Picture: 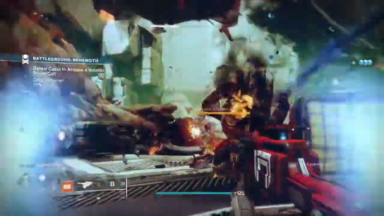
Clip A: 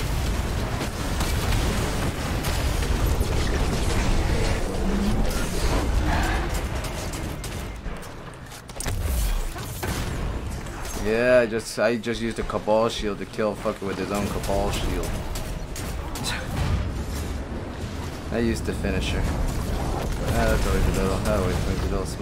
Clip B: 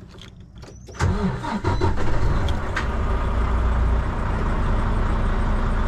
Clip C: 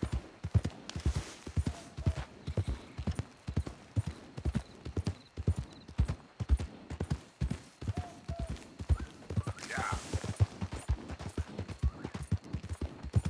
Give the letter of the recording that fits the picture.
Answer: A